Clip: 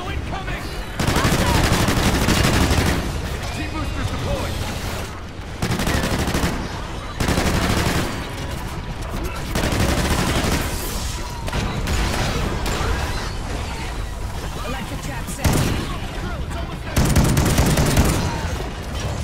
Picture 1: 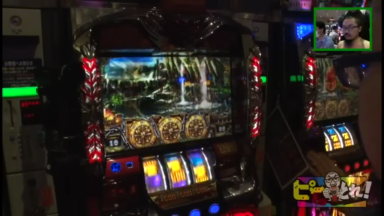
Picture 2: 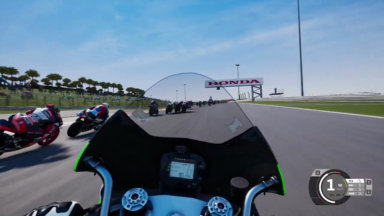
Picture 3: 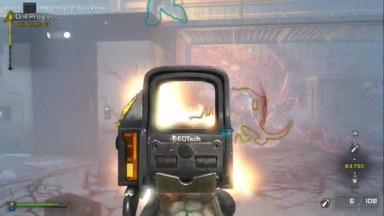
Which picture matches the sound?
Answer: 3